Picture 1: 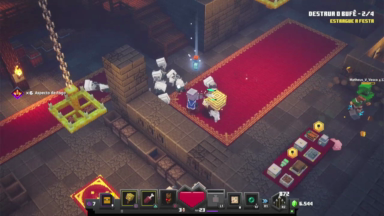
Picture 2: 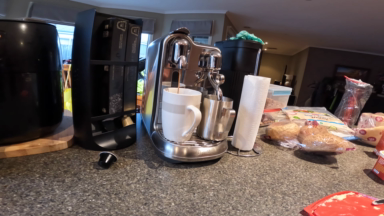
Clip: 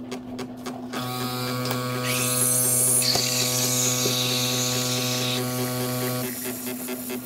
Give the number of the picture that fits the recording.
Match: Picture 2